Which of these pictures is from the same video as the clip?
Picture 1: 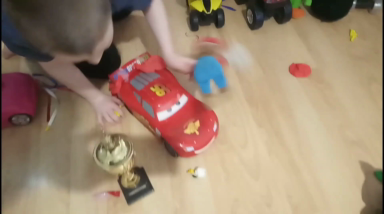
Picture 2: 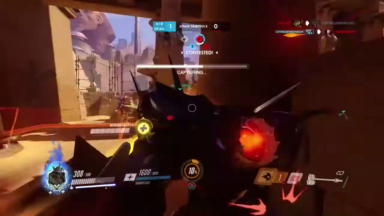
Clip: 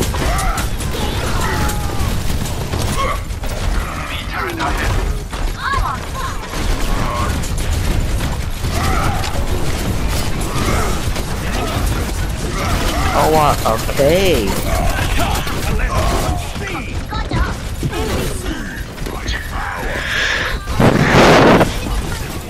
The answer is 2